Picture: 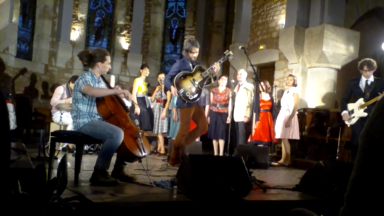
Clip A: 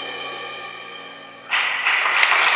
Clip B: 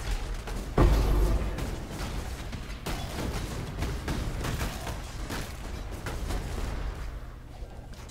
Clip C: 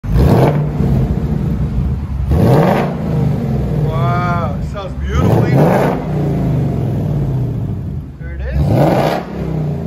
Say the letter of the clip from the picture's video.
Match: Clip A